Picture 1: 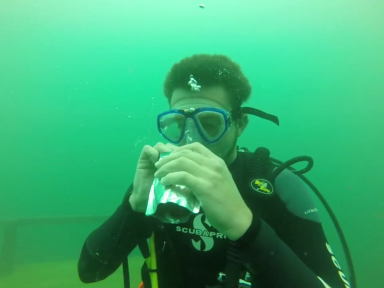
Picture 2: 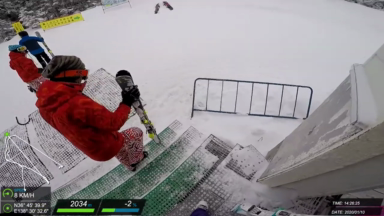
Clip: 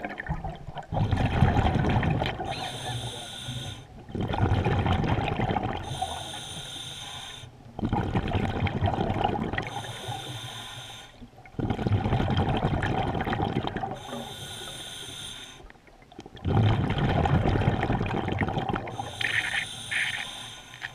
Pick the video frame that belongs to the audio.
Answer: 1